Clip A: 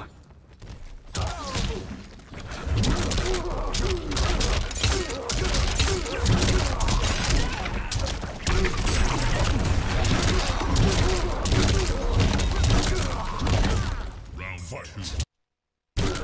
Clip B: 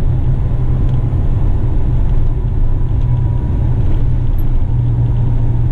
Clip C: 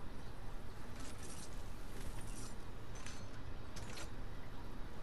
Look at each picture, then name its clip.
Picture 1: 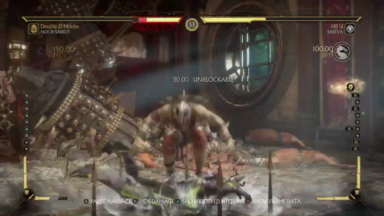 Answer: A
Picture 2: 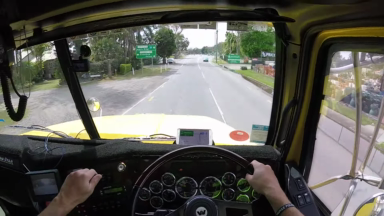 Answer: B